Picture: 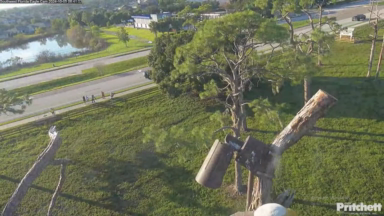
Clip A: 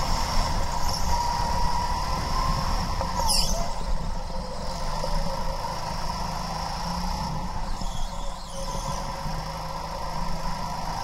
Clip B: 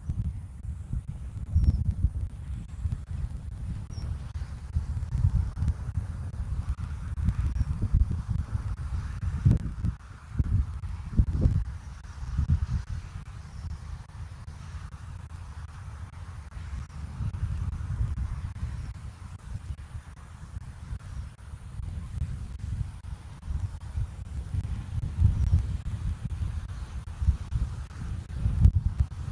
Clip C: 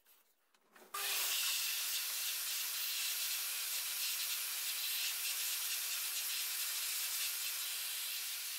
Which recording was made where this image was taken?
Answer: B